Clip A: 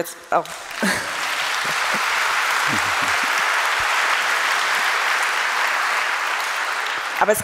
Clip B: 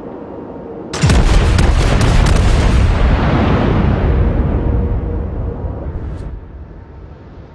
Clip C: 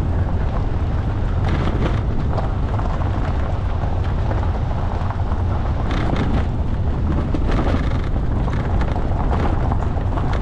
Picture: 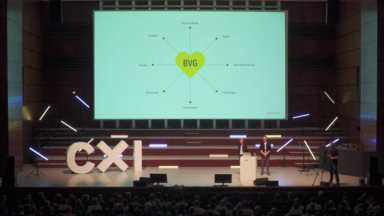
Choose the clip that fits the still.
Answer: A